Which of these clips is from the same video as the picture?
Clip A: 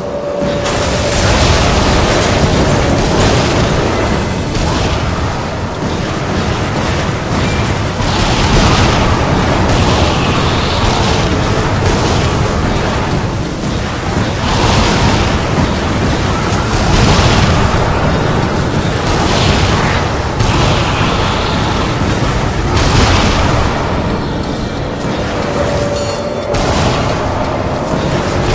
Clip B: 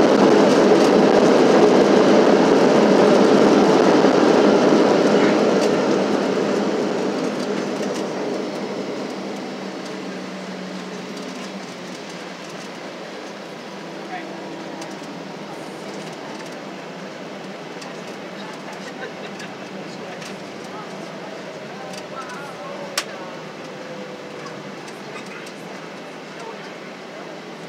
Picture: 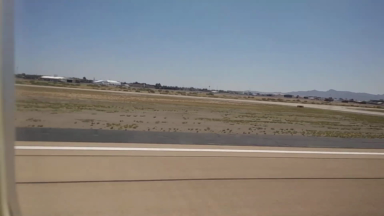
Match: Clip B